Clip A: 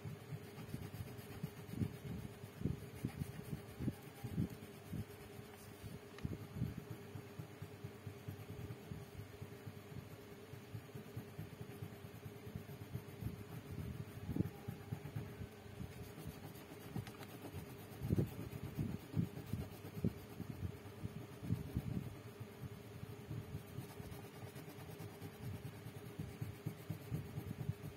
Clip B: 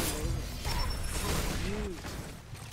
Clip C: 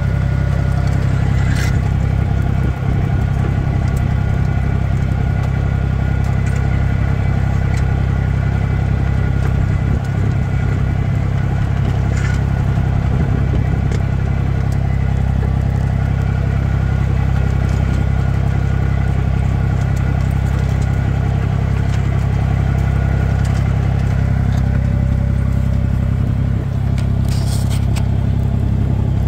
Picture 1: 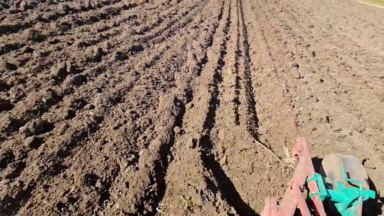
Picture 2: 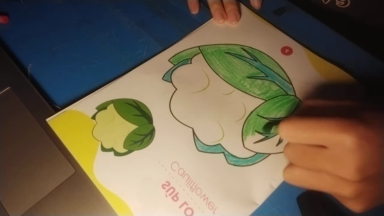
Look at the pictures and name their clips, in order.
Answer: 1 C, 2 A